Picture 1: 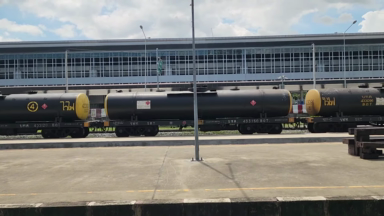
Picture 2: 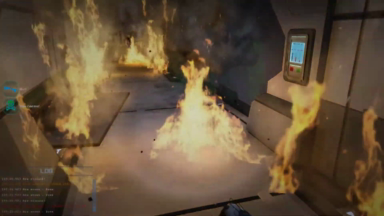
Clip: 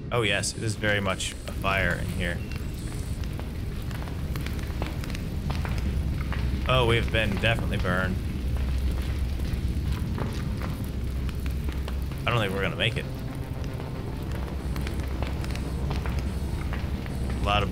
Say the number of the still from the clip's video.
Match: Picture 2